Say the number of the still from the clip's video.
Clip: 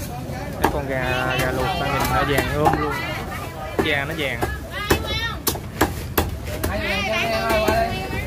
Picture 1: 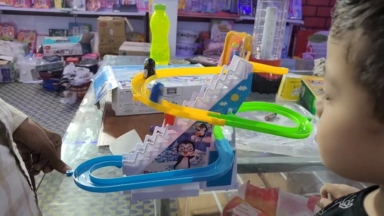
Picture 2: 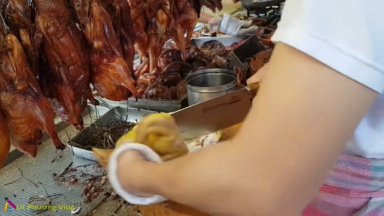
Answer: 2